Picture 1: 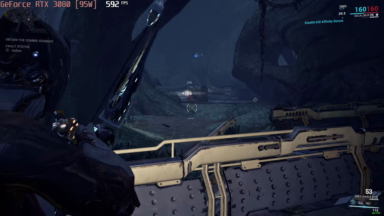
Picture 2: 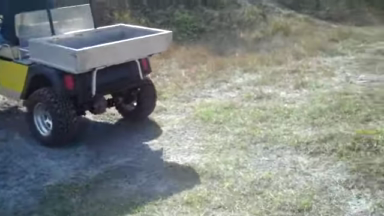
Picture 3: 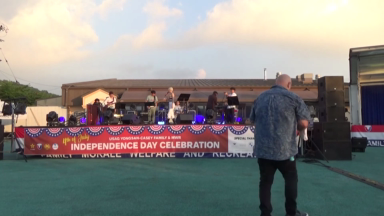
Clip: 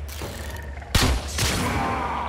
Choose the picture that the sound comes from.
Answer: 1